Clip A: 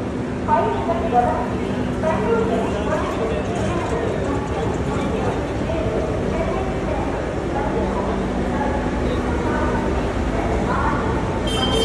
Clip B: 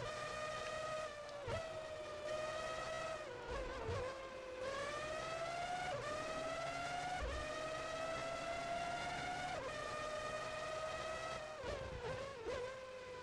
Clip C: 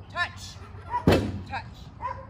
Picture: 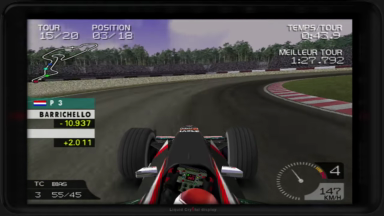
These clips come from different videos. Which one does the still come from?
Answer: B